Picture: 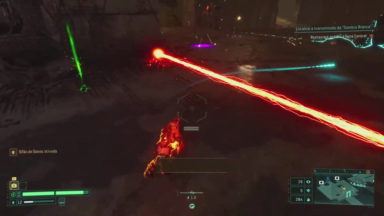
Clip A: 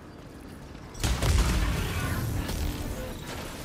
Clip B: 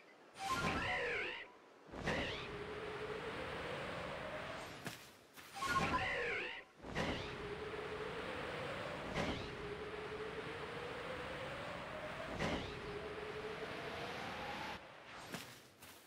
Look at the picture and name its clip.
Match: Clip A